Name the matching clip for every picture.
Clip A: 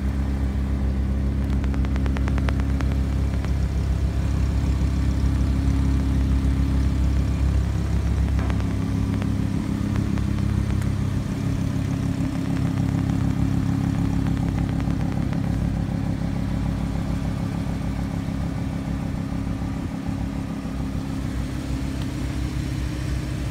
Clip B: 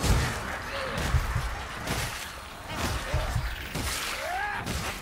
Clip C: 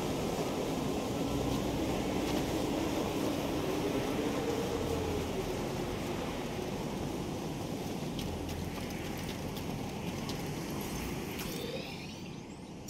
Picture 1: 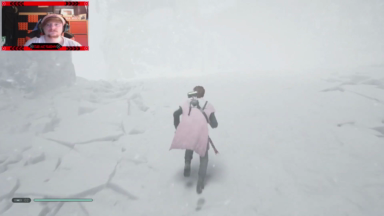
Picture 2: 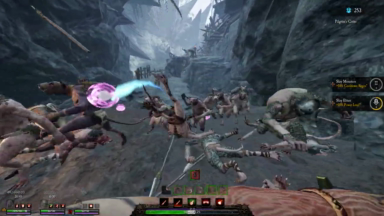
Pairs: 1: C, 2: B